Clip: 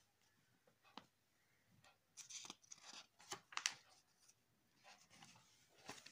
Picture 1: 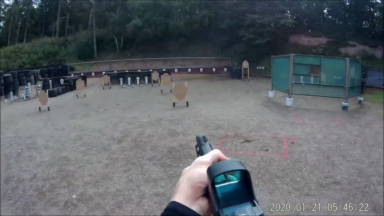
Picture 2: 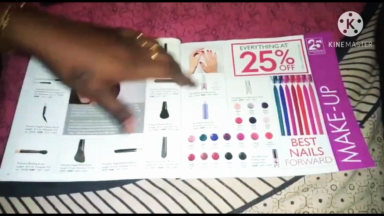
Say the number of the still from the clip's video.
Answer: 2